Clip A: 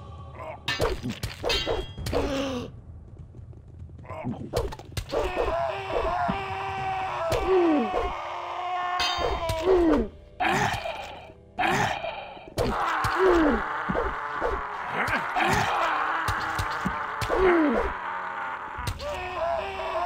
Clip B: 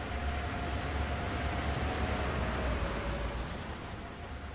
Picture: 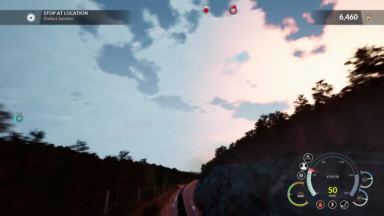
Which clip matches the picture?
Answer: B